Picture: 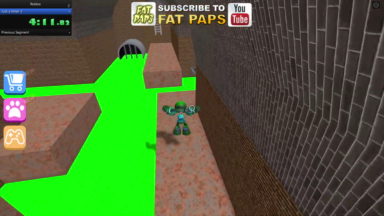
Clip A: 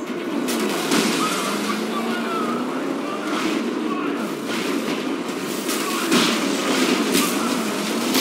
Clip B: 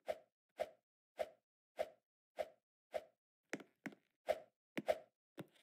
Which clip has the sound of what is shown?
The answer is B